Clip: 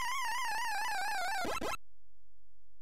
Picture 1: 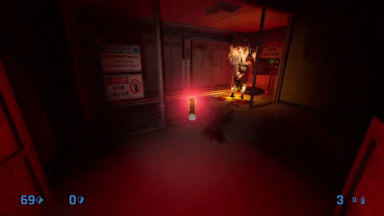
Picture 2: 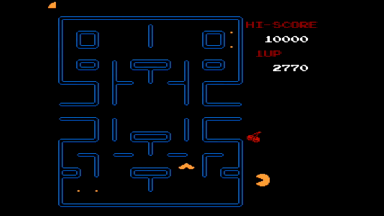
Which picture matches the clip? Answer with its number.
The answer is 2